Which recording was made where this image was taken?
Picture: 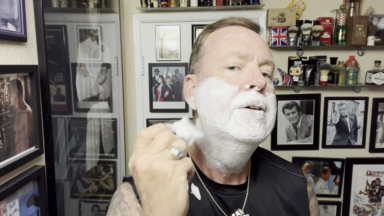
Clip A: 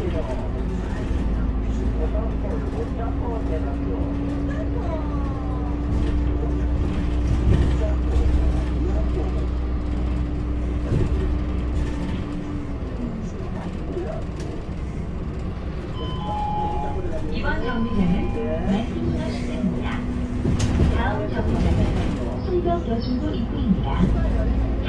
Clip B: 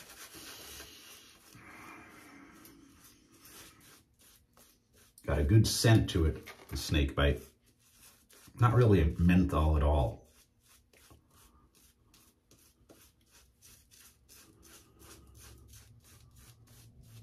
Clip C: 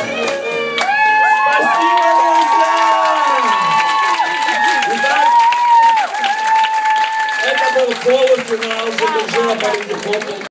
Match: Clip B